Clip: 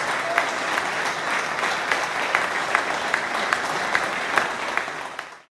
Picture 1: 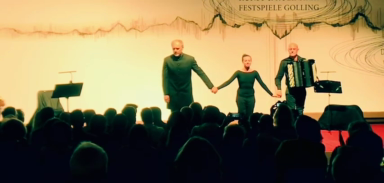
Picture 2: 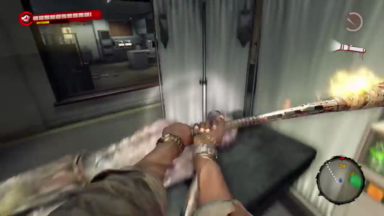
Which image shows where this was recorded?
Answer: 1